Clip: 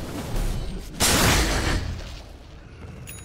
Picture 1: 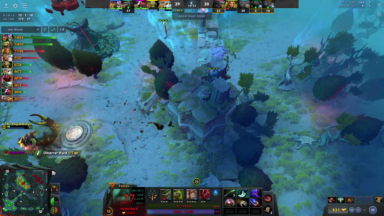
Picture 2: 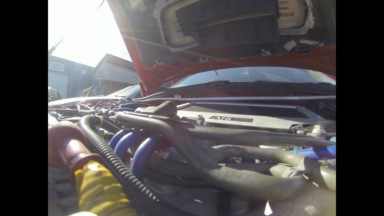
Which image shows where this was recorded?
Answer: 1